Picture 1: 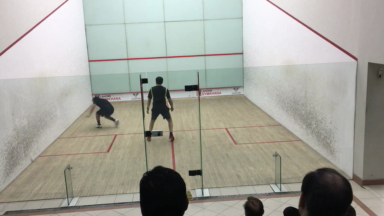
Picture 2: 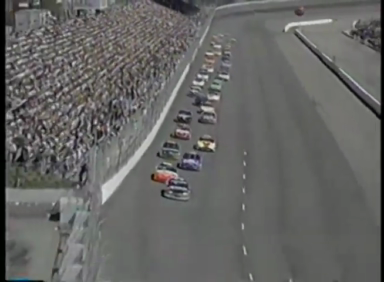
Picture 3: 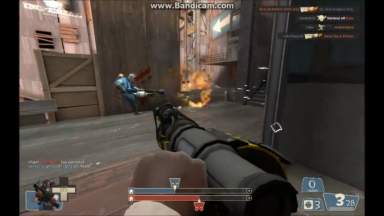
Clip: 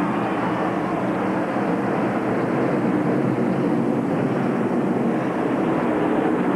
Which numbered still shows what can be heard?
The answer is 2